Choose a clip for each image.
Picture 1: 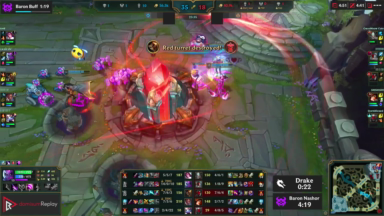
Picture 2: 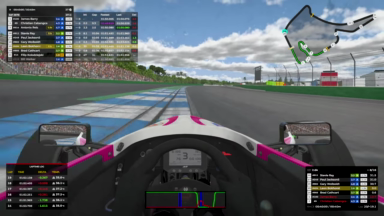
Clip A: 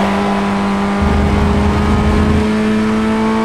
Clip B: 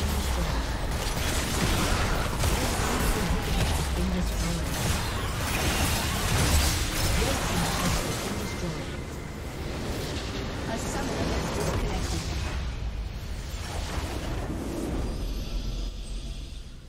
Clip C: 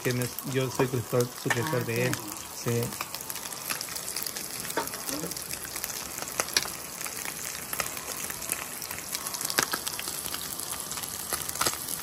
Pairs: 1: B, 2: A